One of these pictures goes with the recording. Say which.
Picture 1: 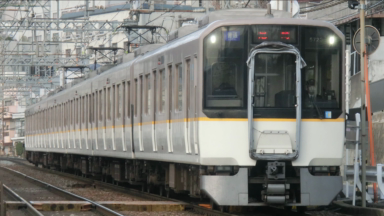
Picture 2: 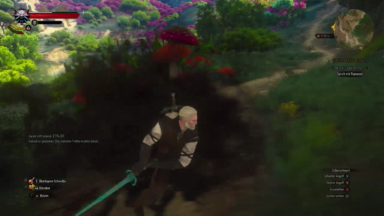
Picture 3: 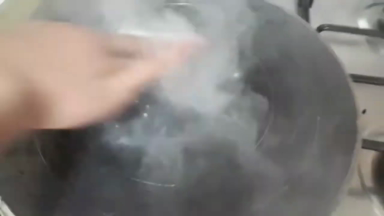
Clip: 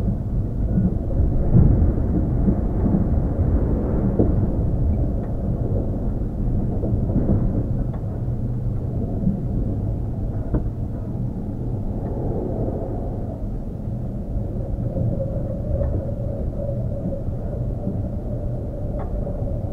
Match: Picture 1